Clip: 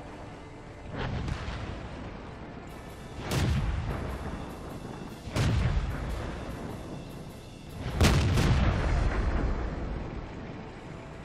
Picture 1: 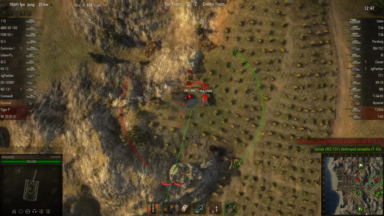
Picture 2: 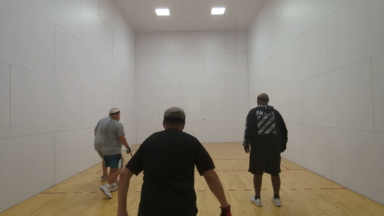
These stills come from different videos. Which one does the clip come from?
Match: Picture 1